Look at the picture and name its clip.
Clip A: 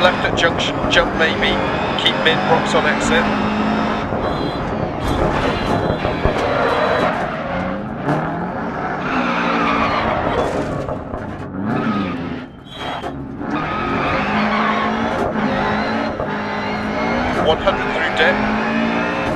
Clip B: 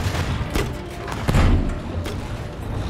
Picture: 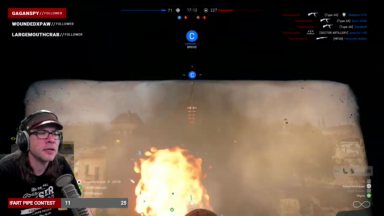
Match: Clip B